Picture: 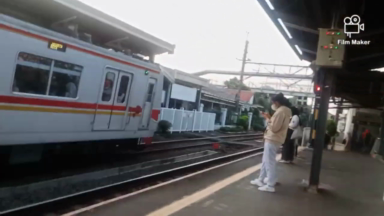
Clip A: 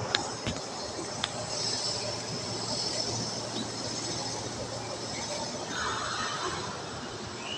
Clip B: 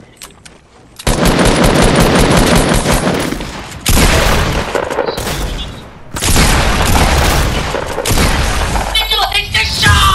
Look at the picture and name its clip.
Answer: A